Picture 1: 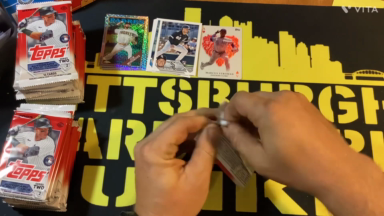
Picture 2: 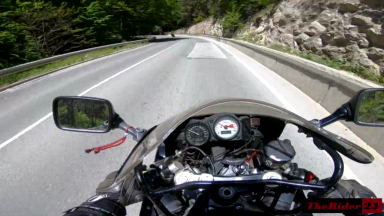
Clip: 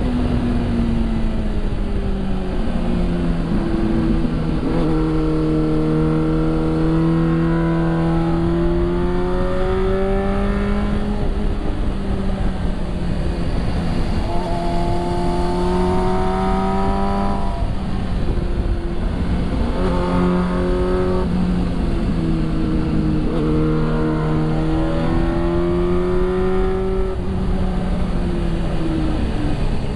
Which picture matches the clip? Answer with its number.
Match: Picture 2